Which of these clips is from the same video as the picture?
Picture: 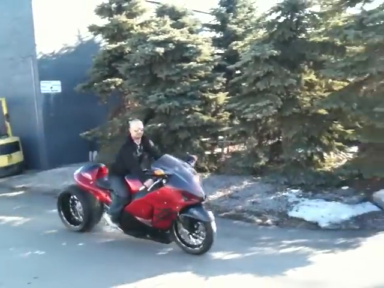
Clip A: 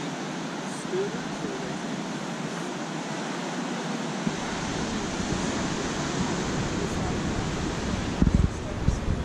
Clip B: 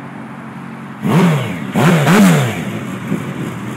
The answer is B